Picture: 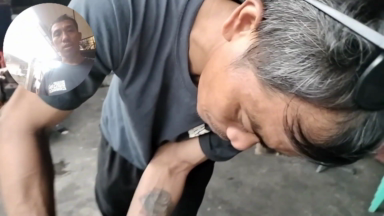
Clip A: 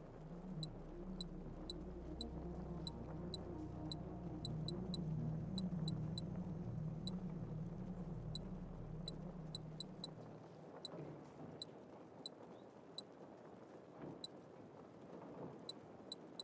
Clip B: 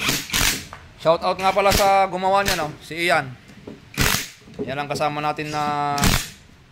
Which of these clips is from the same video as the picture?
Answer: B